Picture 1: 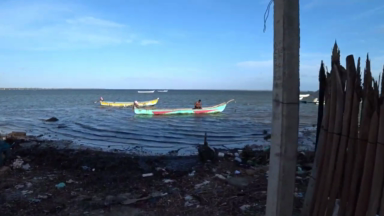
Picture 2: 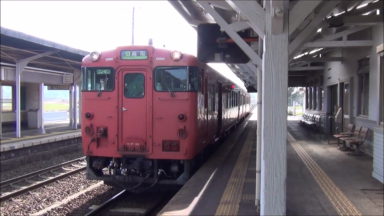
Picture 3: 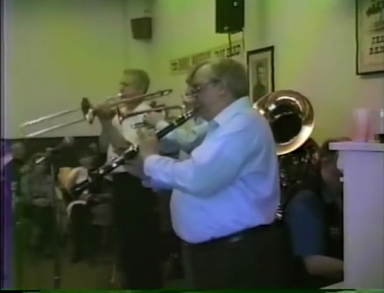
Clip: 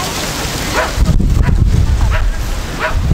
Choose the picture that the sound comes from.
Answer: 1